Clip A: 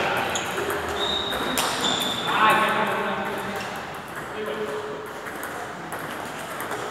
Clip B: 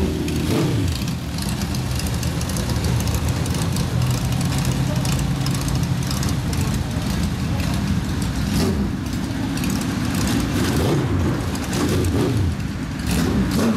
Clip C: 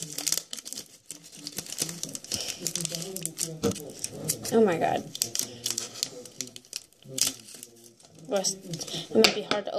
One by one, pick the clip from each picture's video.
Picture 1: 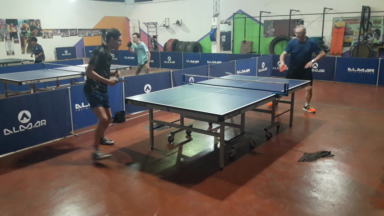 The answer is A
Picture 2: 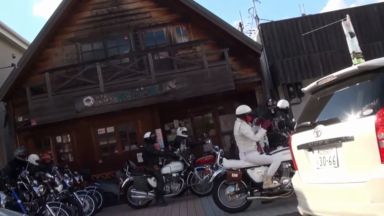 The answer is B